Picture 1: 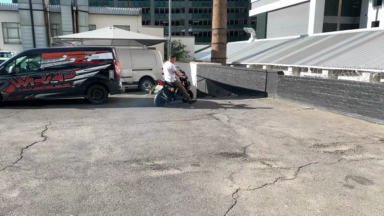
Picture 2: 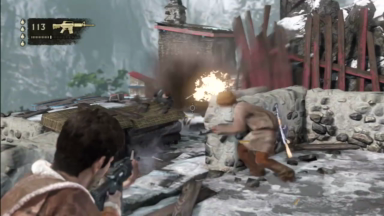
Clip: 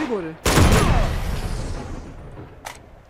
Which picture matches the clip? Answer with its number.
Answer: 2